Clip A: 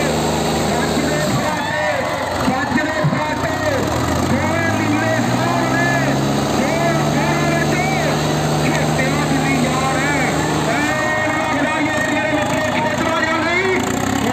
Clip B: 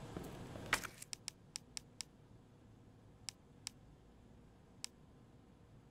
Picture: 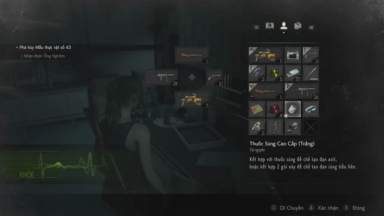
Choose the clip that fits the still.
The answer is B